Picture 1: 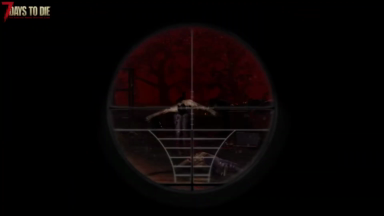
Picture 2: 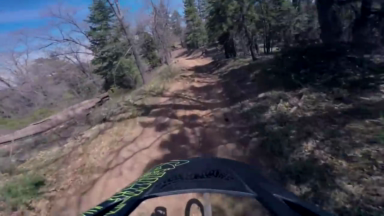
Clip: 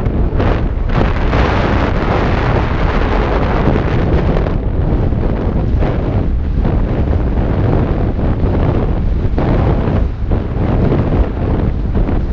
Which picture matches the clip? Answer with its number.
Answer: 2